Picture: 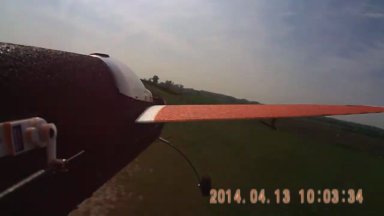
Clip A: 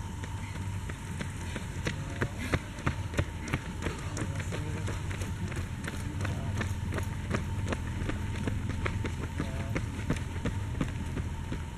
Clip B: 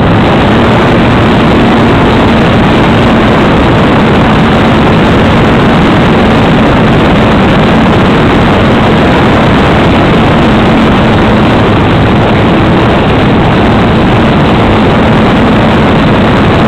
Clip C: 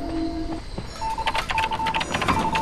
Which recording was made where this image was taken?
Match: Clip B